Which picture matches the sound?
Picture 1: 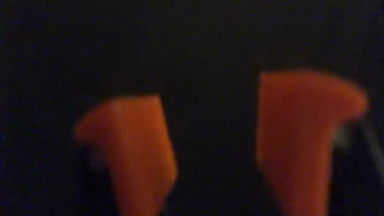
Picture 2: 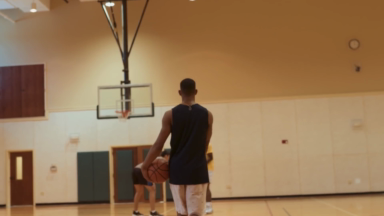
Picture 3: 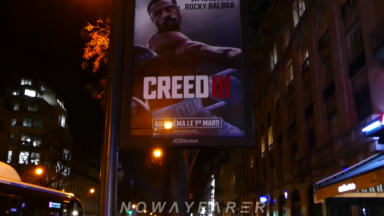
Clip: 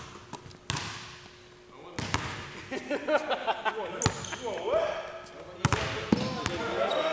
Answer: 2